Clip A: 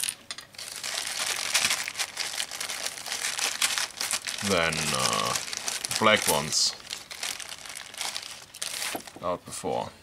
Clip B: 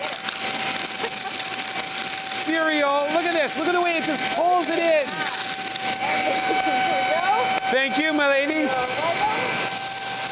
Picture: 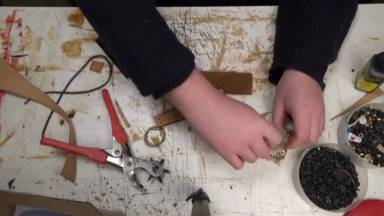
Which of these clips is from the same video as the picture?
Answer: A